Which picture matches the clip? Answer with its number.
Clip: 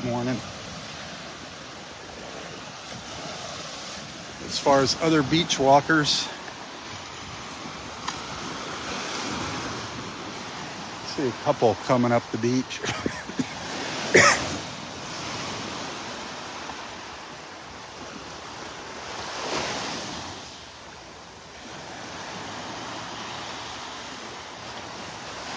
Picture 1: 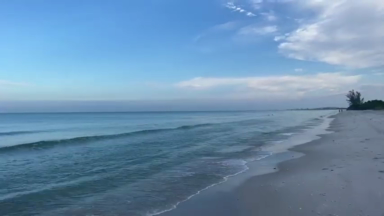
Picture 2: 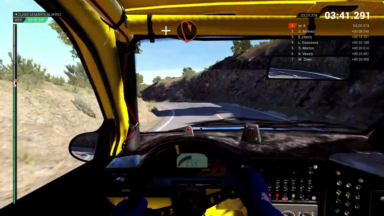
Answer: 1